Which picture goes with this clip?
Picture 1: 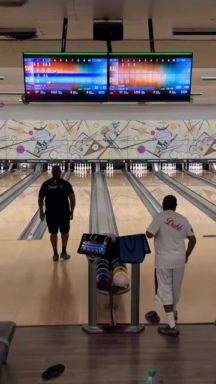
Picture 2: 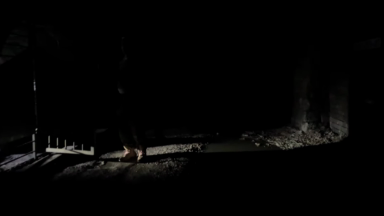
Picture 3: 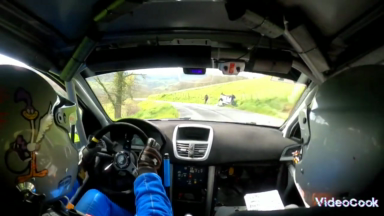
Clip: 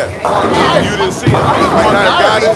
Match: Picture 1